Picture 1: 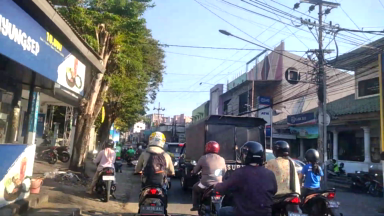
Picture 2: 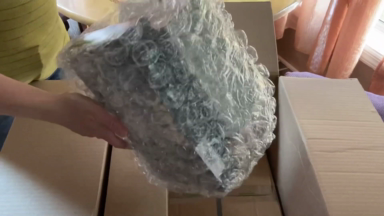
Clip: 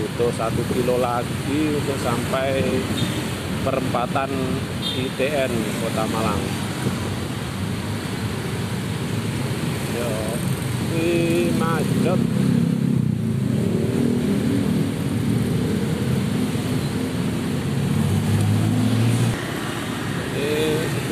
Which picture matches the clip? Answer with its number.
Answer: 1